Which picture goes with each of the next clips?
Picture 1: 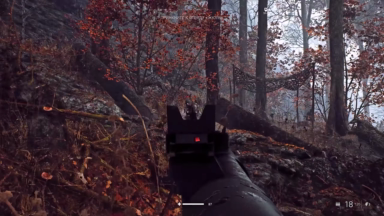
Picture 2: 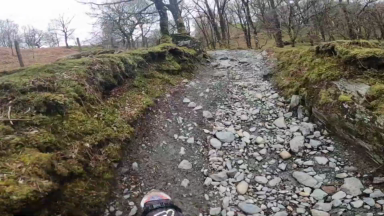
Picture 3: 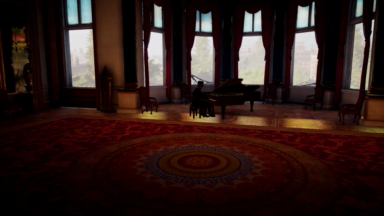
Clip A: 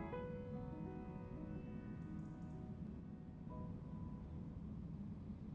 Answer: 3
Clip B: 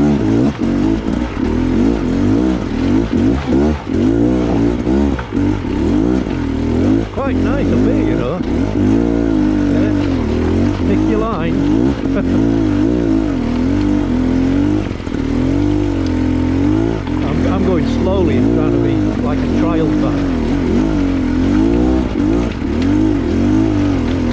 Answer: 2